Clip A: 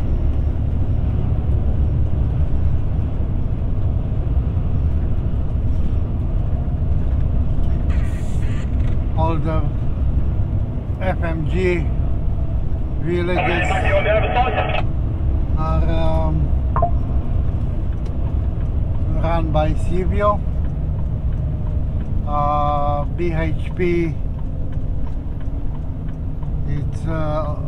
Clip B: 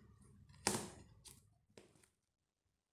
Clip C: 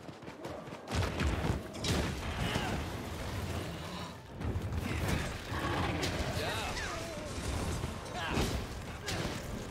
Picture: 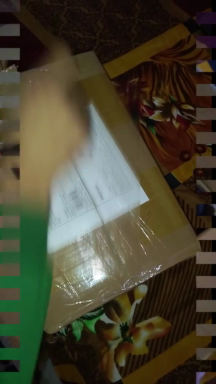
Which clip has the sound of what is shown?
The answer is B